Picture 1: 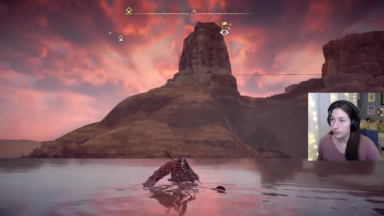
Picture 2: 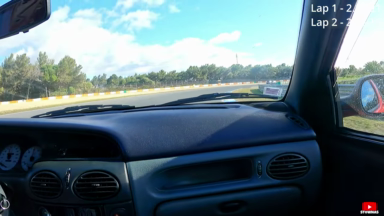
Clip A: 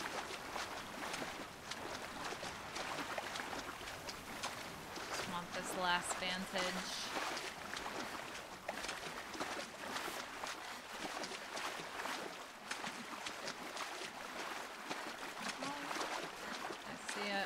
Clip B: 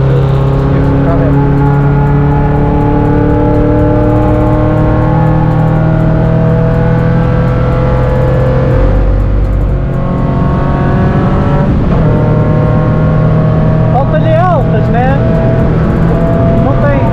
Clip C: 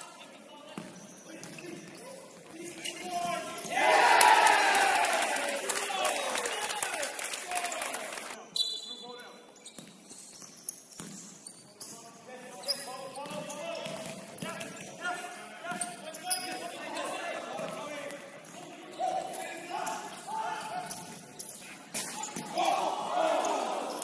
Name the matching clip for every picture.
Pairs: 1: A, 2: B